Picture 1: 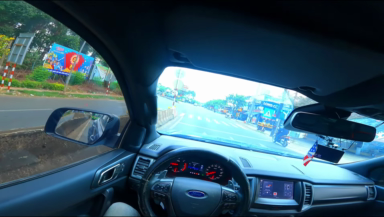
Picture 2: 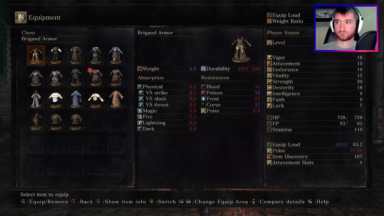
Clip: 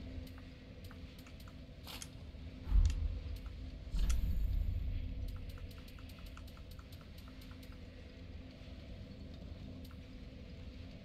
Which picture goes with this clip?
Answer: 2